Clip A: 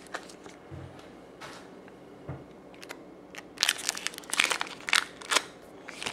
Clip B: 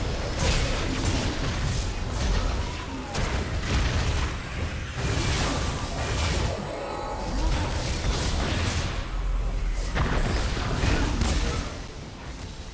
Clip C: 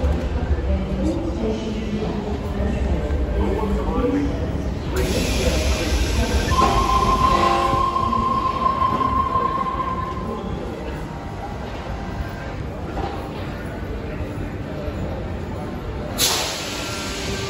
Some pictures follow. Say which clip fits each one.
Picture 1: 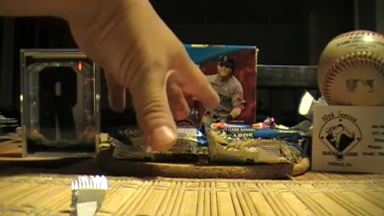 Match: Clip A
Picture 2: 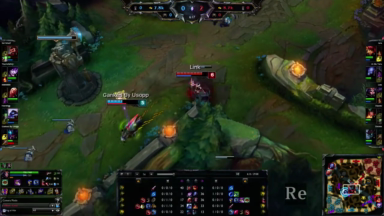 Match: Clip B